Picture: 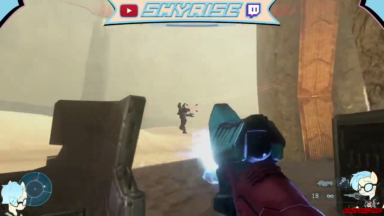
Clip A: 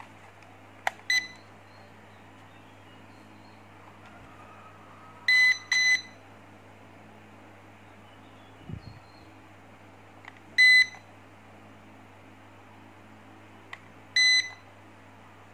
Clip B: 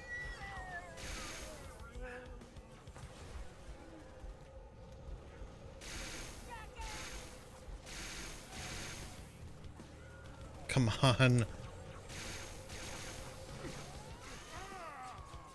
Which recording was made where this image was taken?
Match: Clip B